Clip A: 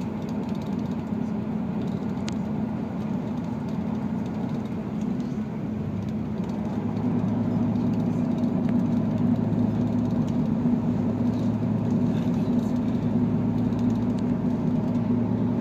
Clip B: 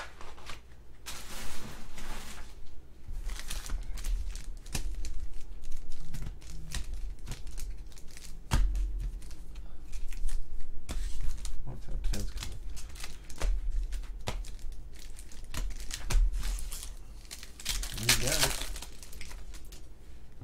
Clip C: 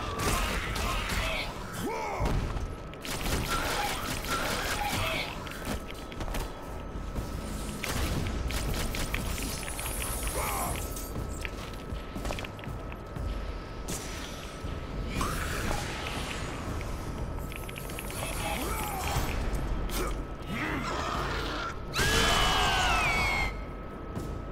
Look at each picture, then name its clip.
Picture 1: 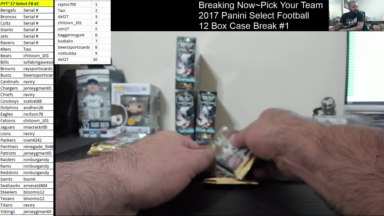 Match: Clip B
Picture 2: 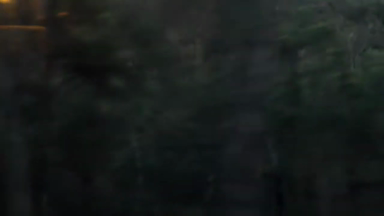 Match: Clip A